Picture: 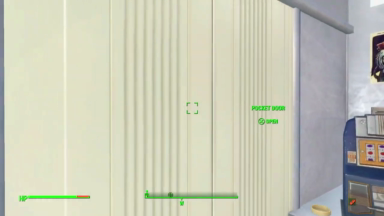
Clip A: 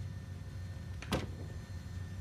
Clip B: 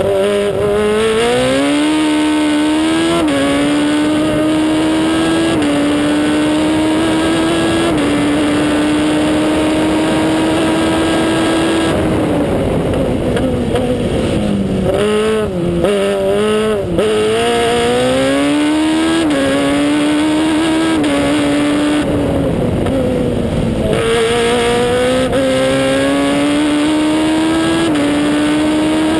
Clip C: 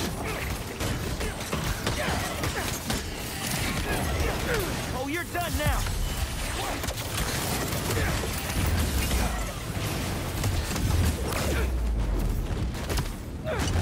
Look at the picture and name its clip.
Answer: A